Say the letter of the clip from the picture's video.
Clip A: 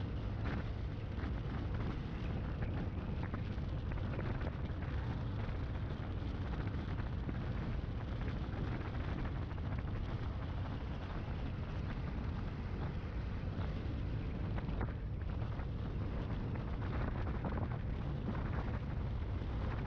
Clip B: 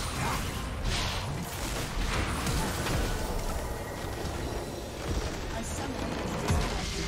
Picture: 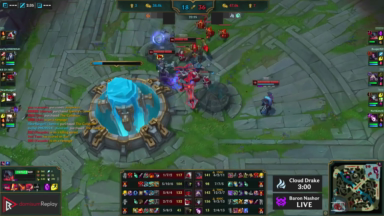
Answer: B